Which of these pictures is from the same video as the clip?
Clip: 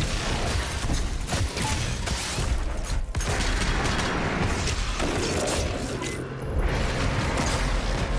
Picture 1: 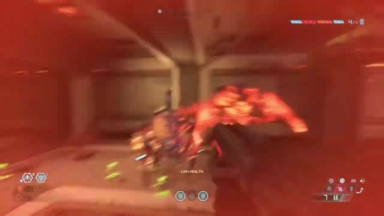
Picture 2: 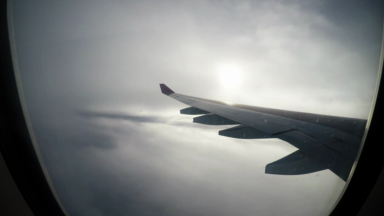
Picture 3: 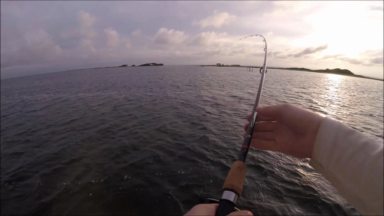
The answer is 1